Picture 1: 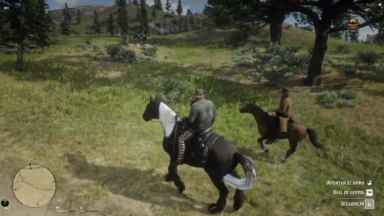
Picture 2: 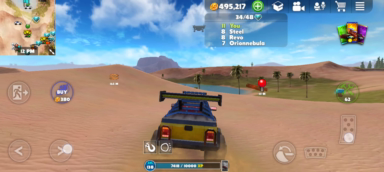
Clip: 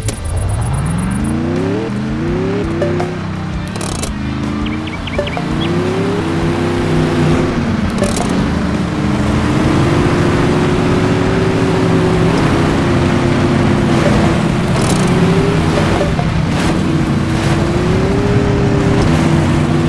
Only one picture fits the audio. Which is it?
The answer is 2